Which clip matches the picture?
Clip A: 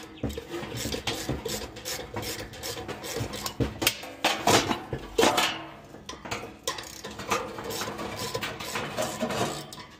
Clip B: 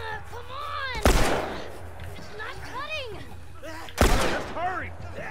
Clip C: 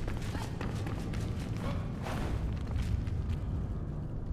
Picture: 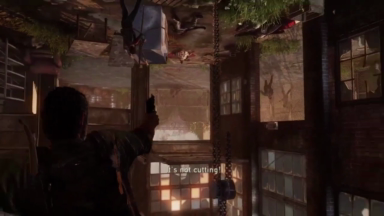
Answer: B